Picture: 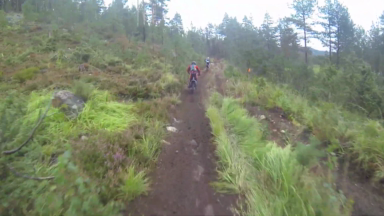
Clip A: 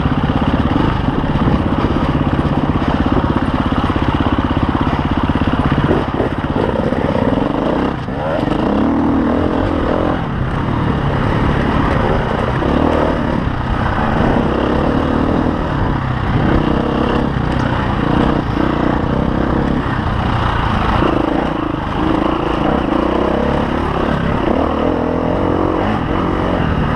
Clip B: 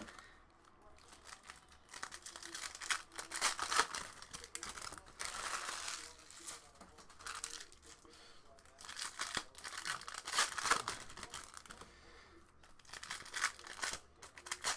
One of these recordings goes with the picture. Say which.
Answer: A